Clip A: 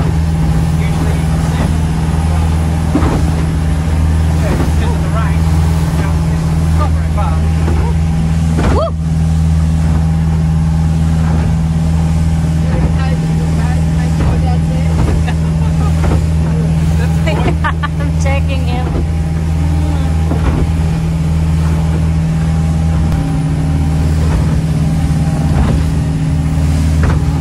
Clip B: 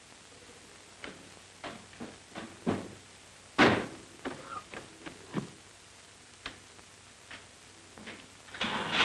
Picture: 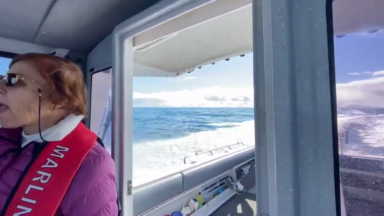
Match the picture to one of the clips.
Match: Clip A